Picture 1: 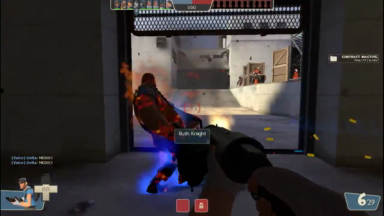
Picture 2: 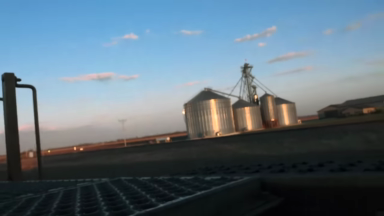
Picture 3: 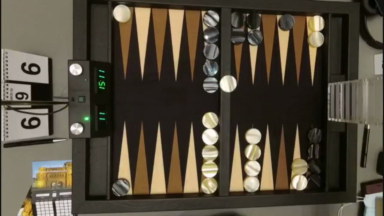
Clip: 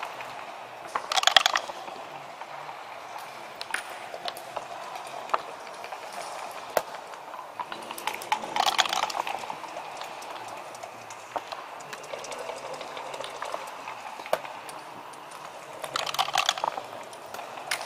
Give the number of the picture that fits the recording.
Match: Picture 3